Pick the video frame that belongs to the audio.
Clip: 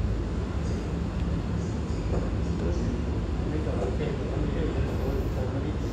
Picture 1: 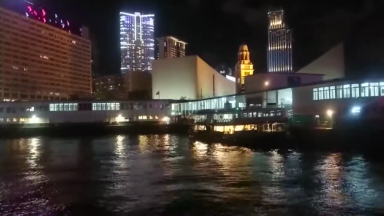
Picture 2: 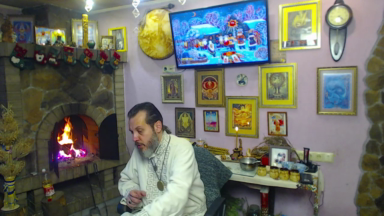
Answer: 1